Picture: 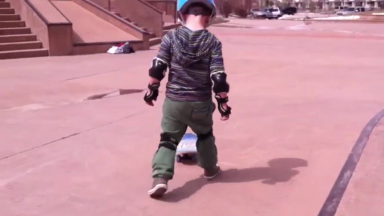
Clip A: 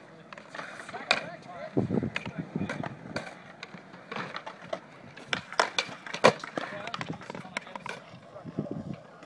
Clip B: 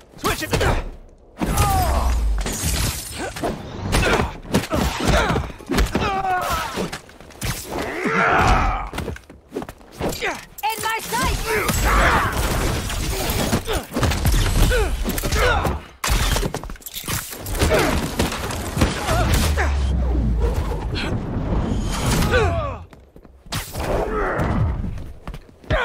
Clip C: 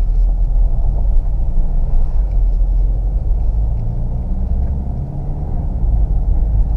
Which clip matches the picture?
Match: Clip A